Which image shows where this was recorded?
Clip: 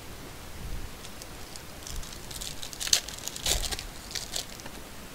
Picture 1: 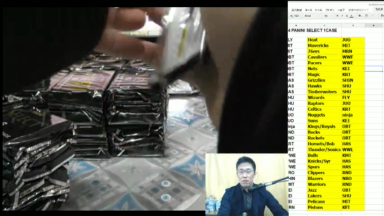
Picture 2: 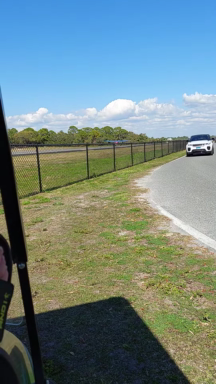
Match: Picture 1